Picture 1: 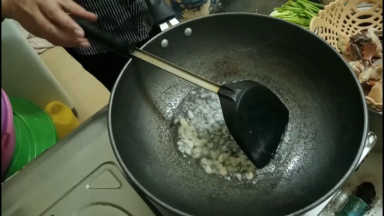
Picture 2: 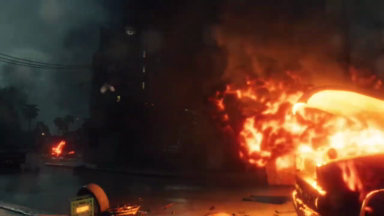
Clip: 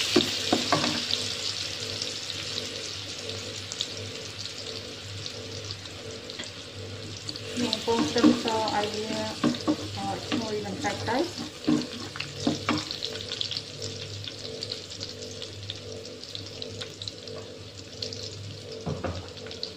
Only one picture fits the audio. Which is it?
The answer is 1